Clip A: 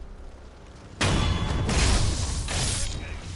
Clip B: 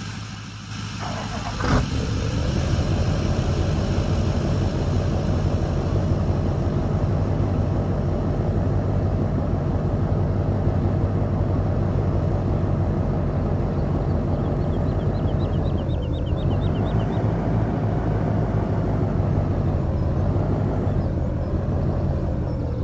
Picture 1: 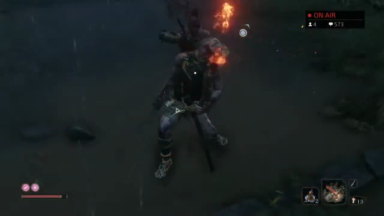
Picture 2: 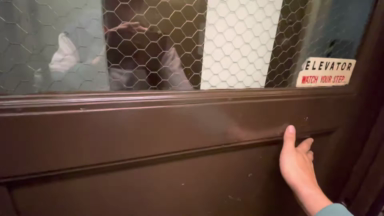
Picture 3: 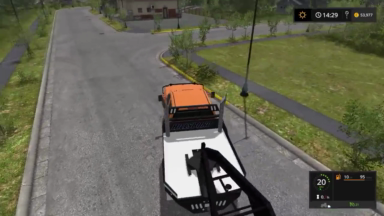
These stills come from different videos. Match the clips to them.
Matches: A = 1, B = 3